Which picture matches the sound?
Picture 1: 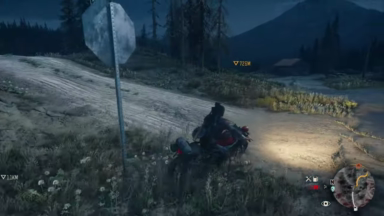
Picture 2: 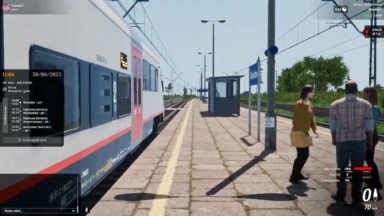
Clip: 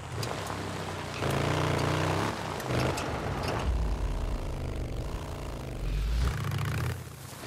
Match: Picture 1